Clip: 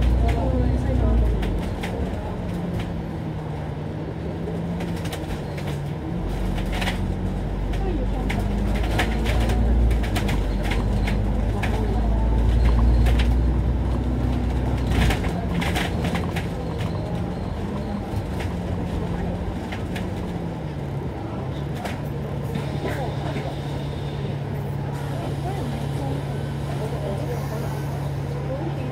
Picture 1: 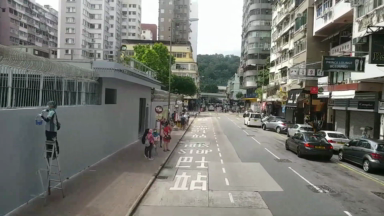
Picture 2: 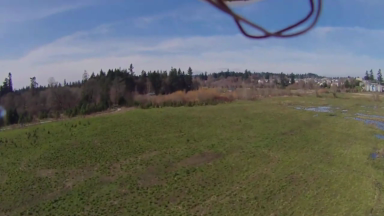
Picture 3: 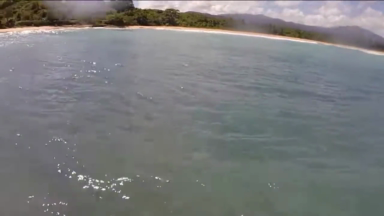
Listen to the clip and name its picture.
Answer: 1